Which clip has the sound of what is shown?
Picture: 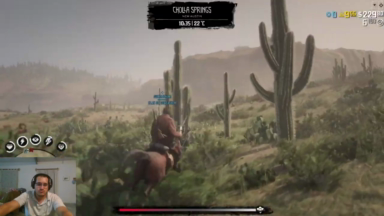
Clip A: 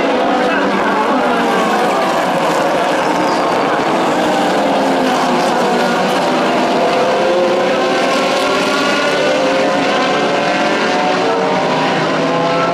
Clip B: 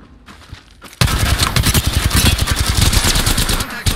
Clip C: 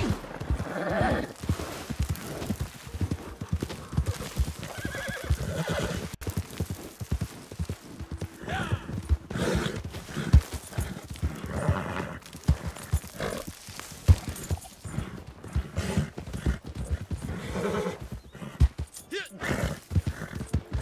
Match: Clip C